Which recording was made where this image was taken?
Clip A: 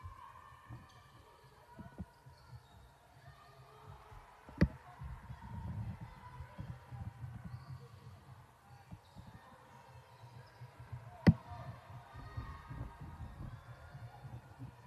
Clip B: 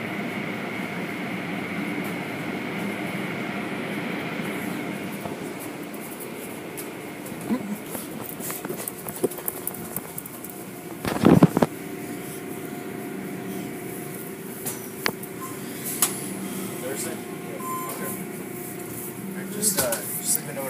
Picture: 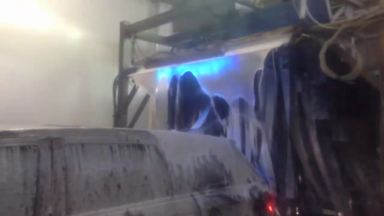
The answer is B